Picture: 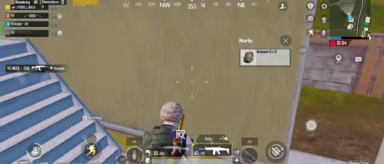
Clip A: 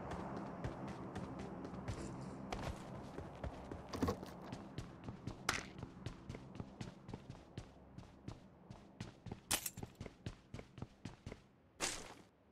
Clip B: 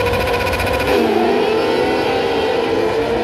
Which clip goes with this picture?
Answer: A